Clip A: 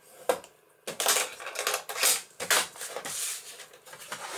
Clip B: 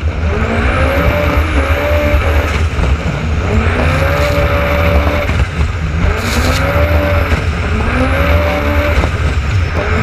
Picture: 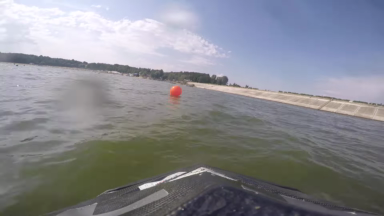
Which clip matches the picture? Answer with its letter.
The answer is B